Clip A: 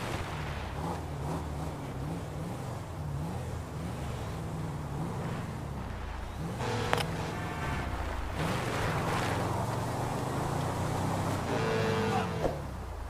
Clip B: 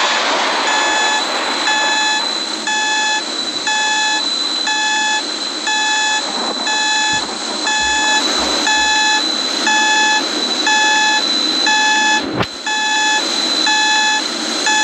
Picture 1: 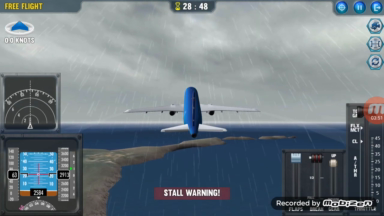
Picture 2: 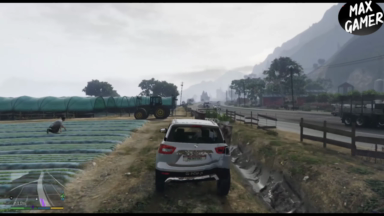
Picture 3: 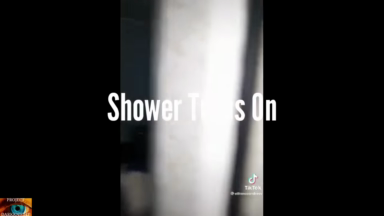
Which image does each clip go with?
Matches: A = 2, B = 1